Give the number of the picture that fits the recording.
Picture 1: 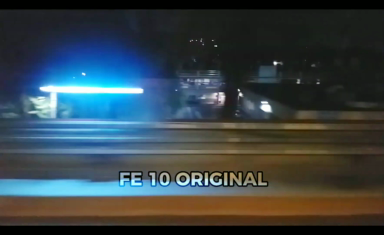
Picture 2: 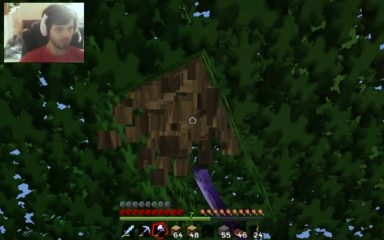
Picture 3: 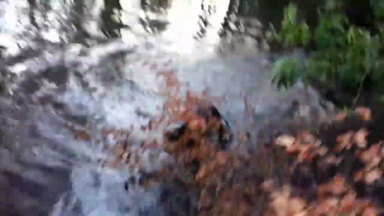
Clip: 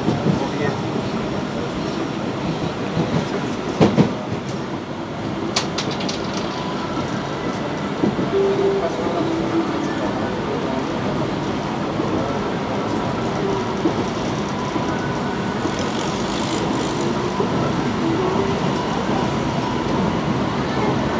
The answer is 1